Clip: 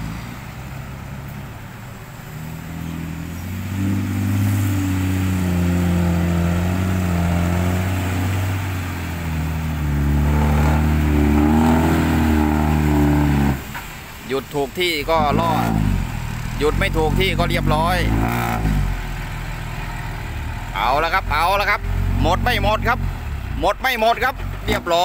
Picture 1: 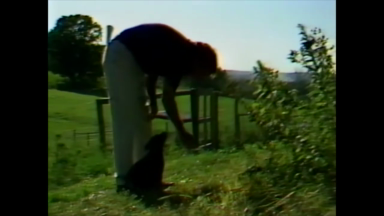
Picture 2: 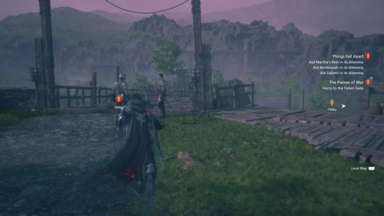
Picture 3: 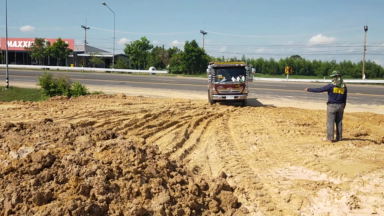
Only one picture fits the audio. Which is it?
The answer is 3